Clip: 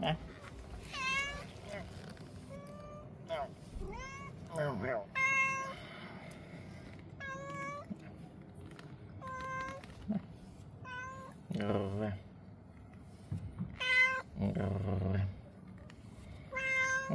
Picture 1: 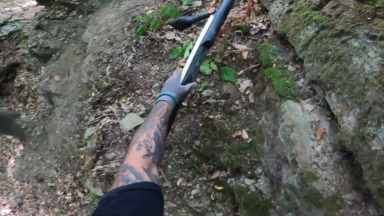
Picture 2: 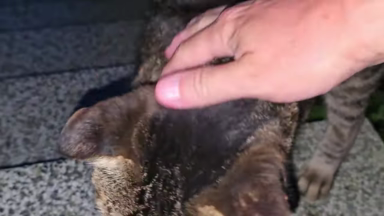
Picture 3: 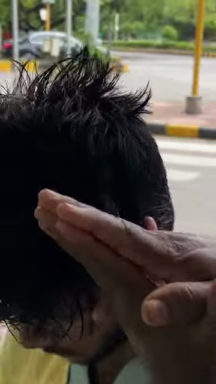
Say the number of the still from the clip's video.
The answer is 2